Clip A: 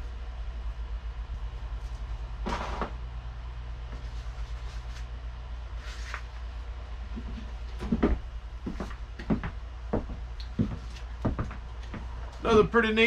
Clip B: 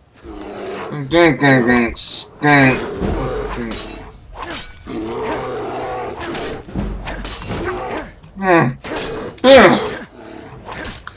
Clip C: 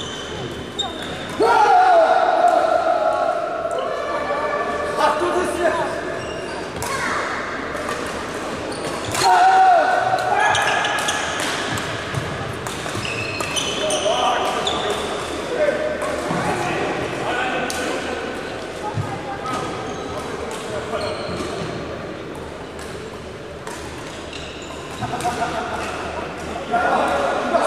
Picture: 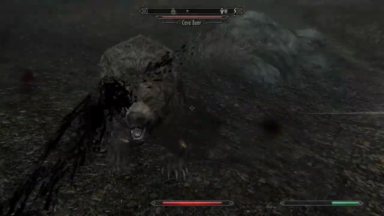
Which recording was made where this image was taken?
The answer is B